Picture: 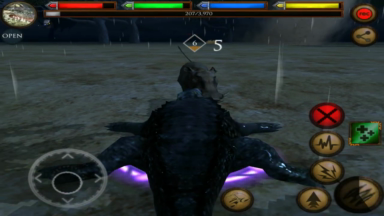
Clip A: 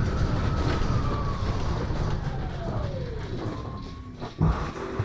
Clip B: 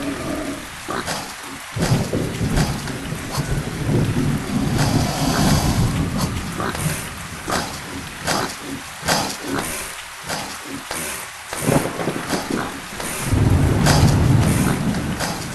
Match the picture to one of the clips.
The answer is B